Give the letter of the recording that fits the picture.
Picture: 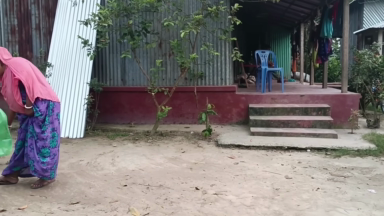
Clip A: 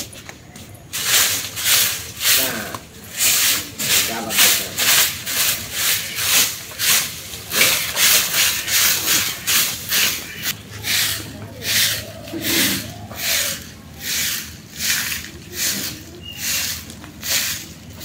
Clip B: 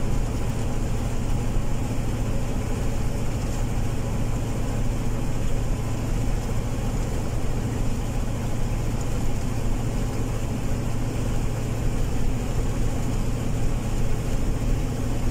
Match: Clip A